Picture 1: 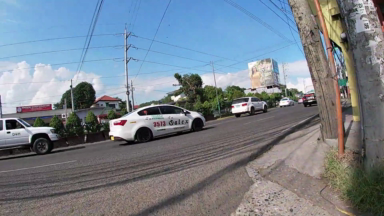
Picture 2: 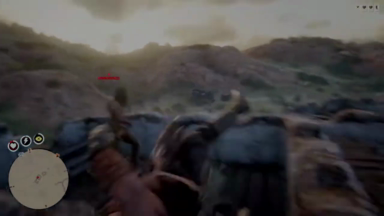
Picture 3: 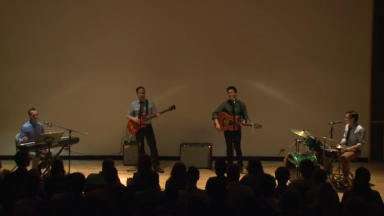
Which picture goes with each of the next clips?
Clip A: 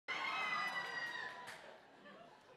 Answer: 3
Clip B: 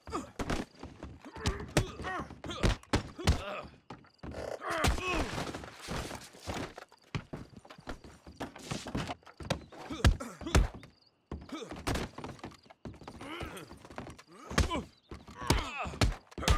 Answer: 2